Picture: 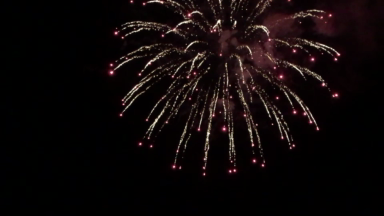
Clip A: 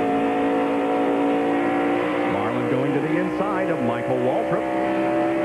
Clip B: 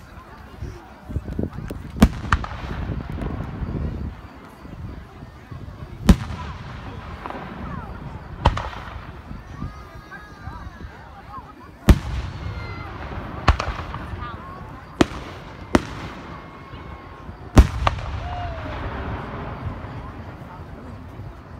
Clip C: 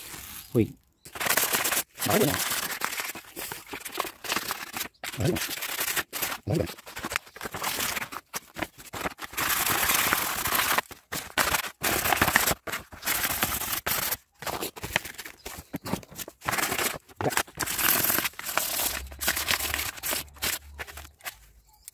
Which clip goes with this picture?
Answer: B